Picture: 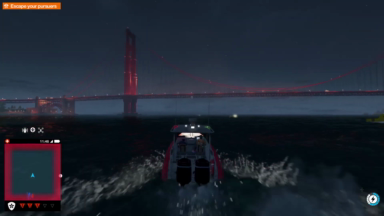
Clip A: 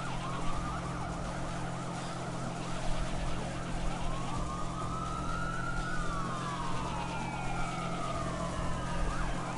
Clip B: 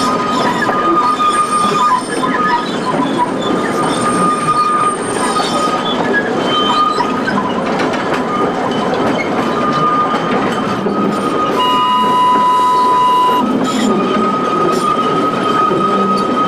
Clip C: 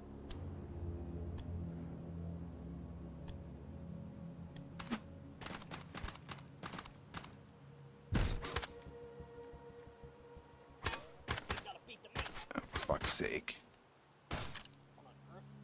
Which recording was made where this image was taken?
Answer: A